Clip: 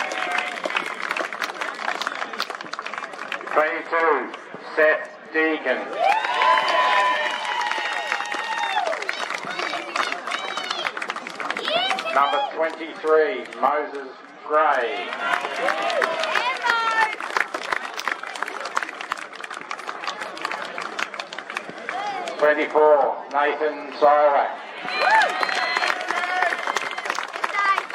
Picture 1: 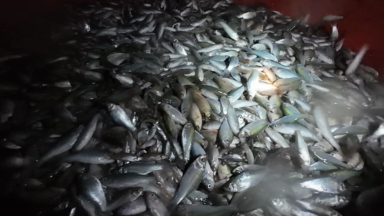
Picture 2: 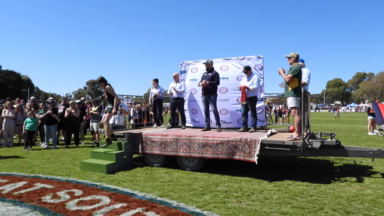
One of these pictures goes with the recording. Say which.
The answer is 2